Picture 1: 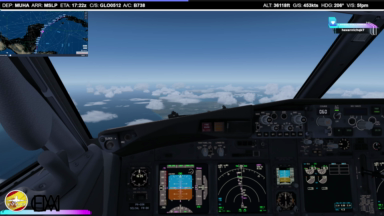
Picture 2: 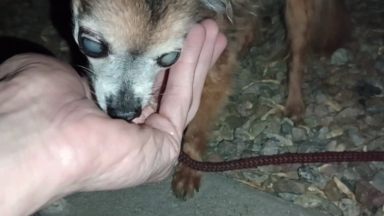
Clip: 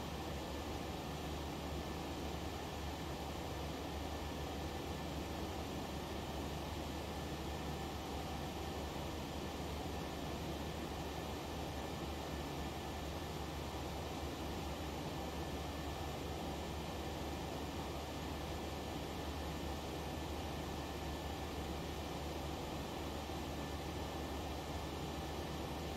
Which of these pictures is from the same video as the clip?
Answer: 1